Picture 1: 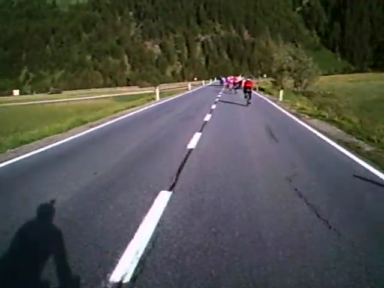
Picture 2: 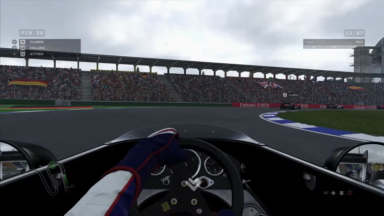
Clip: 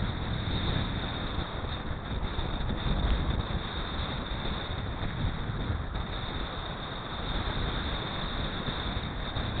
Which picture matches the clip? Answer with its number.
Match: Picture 1